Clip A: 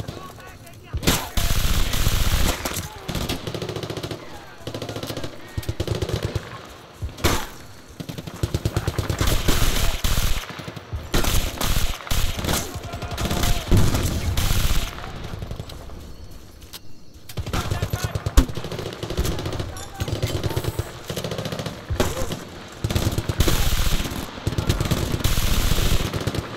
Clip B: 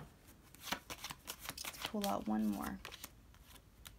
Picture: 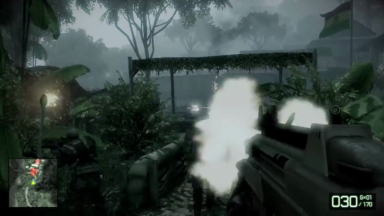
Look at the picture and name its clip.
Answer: A